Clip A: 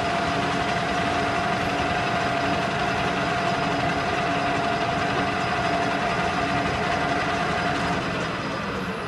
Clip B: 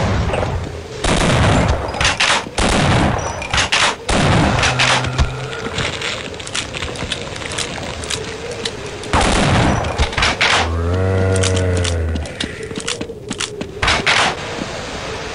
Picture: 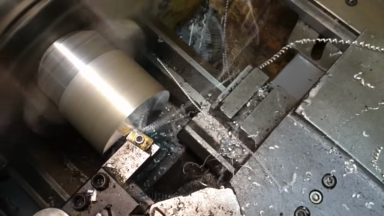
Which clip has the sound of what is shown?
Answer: A